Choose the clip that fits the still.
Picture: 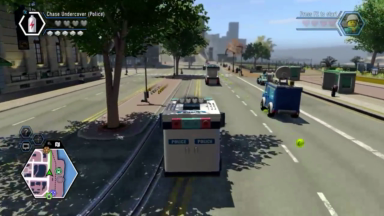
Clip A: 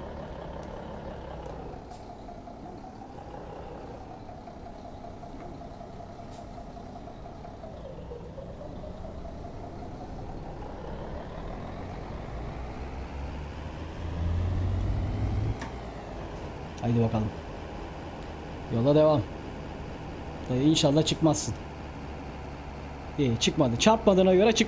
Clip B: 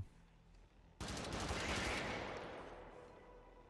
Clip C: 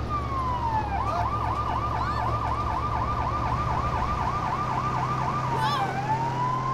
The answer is C